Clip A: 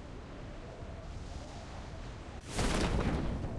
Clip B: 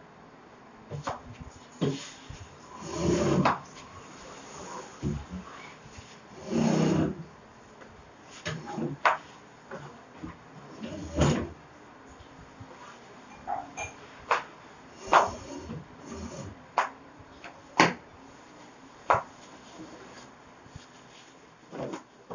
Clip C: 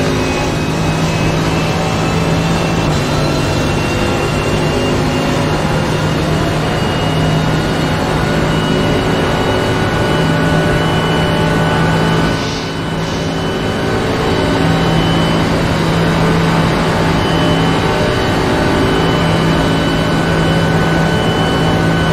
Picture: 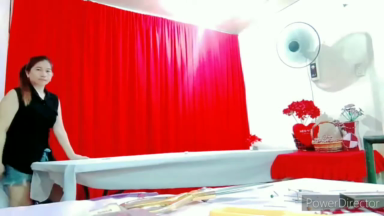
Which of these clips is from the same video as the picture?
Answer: B